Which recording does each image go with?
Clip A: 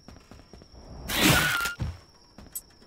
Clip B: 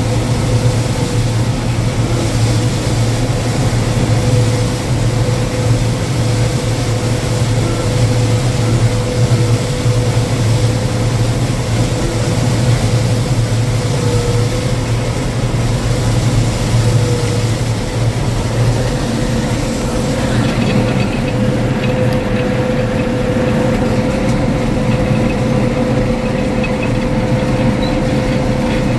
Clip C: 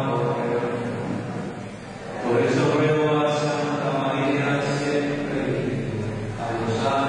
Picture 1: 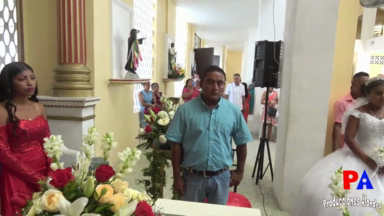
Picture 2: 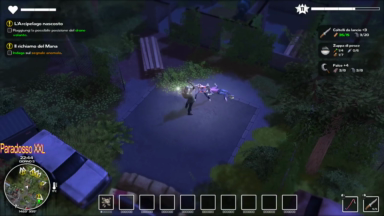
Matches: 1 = C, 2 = A